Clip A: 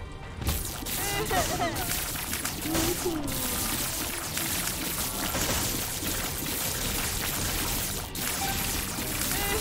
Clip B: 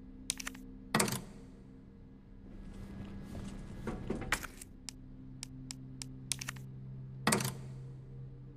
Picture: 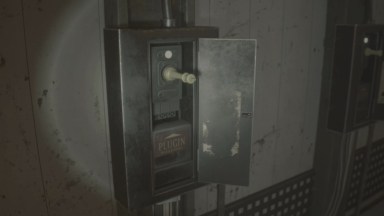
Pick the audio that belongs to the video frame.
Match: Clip B